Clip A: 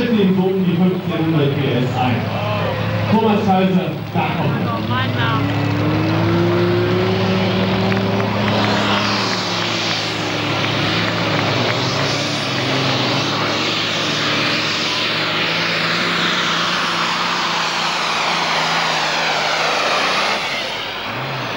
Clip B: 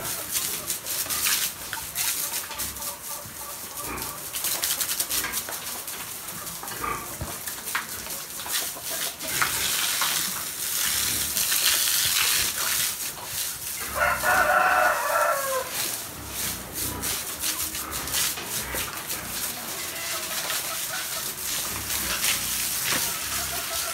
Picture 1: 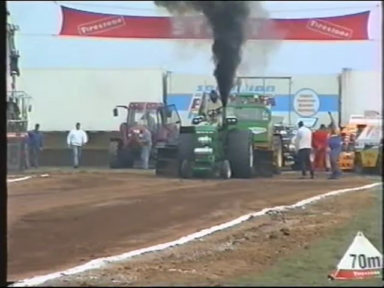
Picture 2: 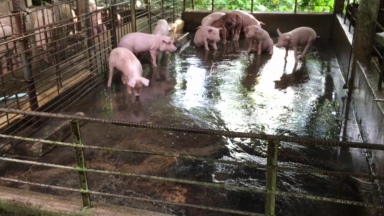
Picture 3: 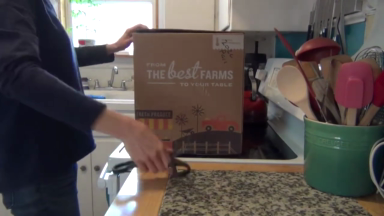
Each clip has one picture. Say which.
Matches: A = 1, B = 2